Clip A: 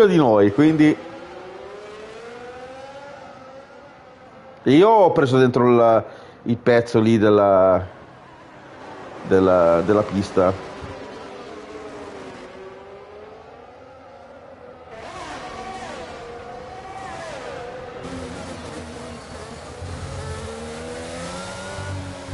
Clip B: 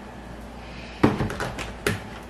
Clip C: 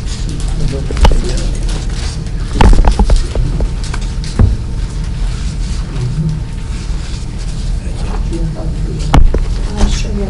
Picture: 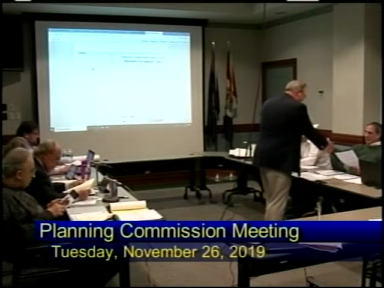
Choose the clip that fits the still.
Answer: C